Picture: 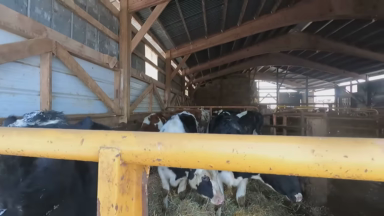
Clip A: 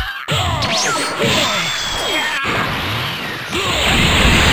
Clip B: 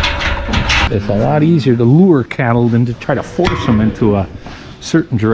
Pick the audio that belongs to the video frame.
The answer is B